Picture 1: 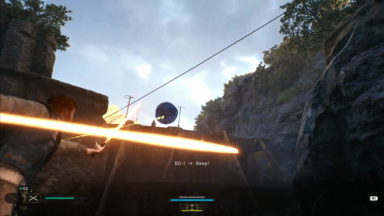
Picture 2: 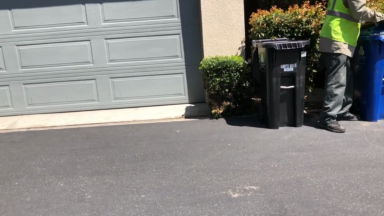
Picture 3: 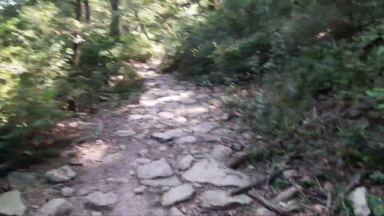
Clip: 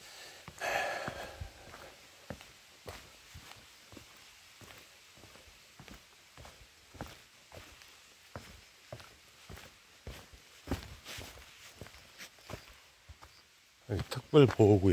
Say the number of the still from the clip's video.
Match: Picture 3